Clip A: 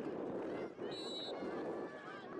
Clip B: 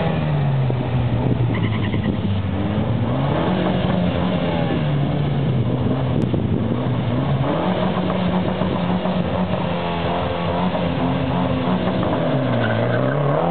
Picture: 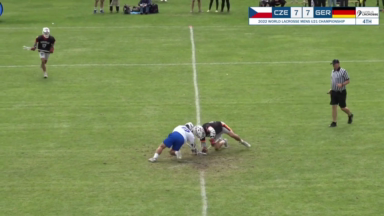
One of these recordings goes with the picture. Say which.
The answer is A